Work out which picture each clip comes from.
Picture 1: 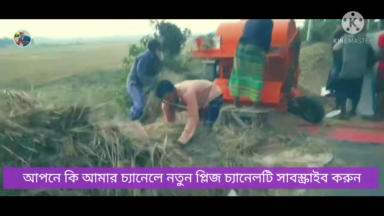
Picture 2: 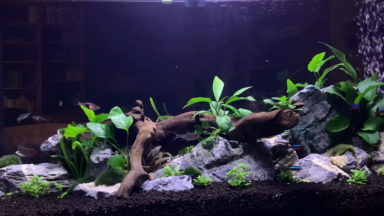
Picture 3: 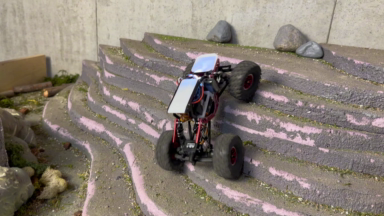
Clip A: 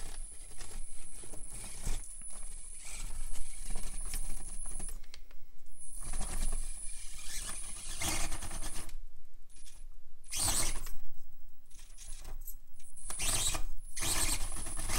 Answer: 3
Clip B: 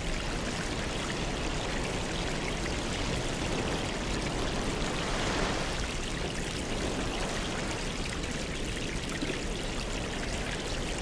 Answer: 2